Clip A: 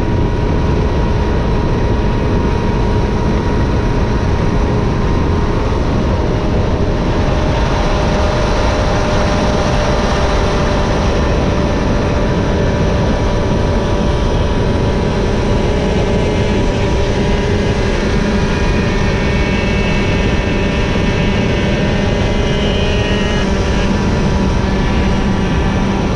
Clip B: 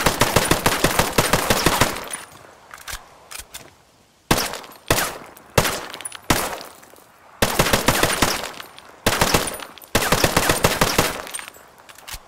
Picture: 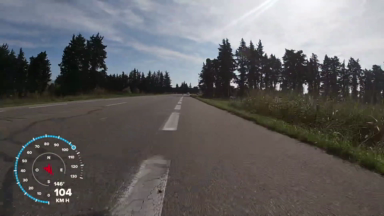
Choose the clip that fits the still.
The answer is A